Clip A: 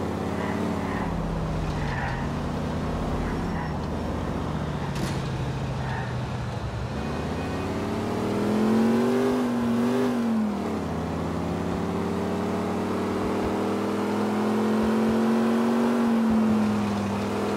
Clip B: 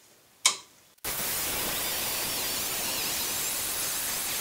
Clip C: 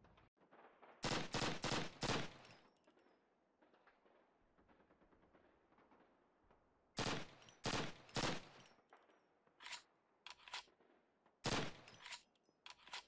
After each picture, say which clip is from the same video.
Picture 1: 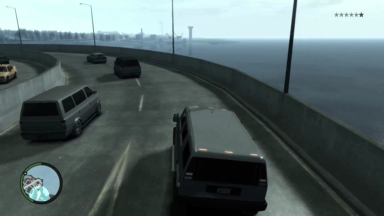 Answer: A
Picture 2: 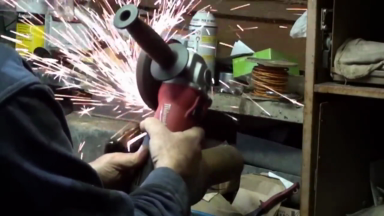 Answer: B